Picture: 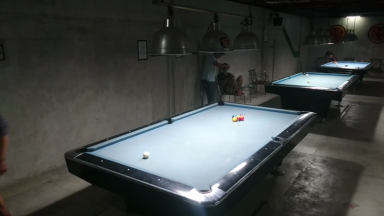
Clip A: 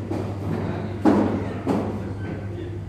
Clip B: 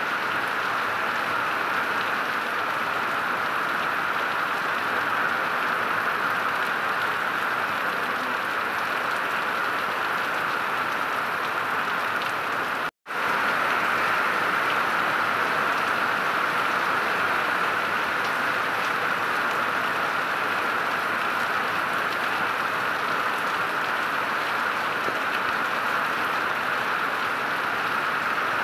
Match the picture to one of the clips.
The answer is A